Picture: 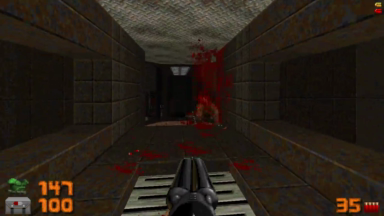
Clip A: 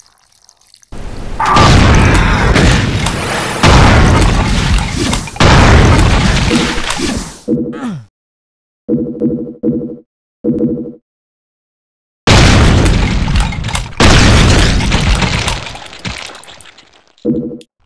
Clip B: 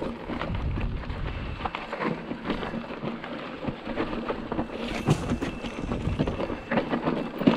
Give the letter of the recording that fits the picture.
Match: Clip A